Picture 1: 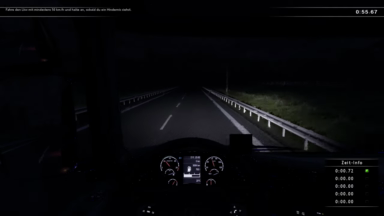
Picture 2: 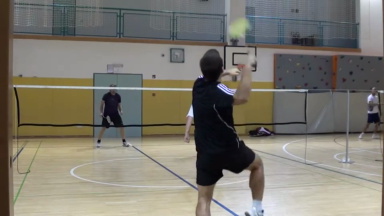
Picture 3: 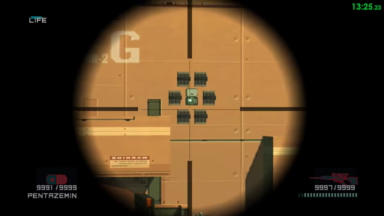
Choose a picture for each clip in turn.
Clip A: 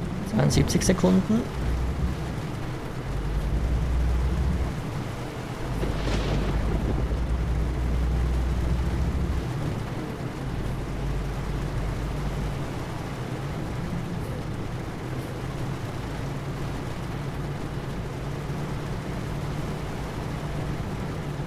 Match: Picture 1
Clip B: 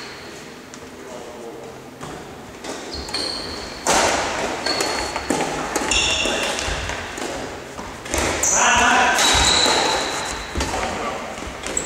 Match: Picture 2